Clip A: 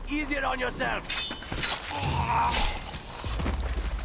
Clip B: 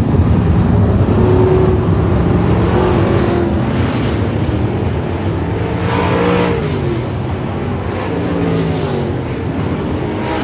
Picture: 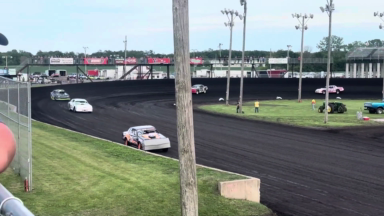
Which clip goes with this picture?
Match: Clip B